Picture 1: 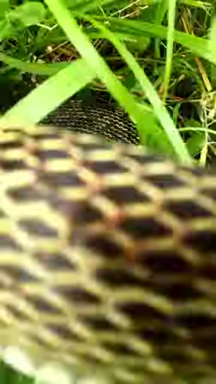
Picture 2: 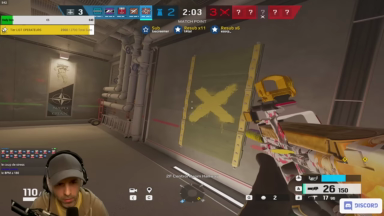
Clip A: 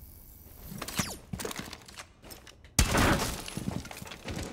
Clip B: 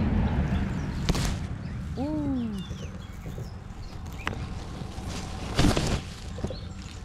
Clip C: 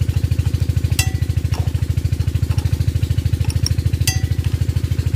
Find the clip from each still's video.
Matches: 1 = B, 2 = A